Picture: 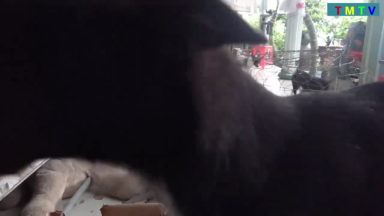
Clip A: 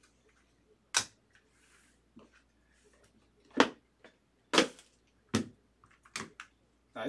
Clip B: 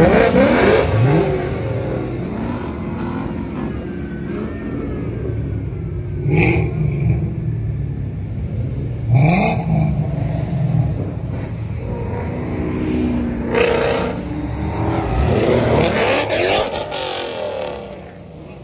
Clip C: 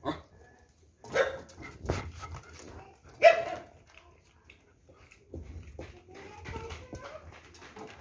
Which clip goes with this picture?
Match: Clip C